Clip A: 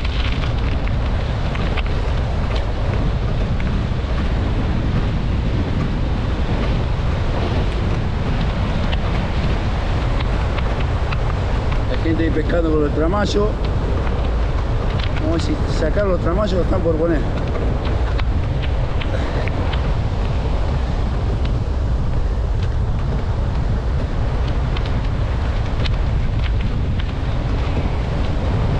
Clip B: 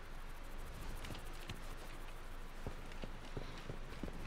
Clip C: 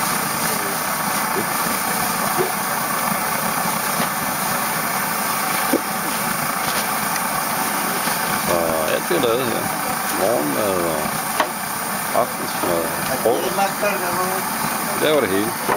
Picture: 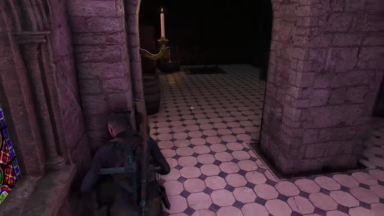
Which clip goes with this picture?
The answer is B